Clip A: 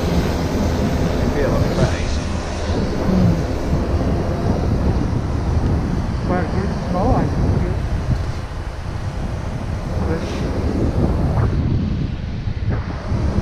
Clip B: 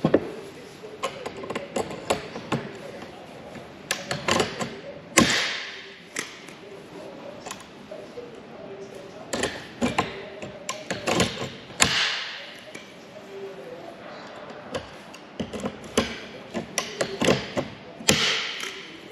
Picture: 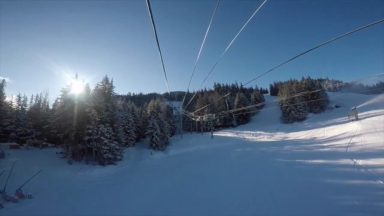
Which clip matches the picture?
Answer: A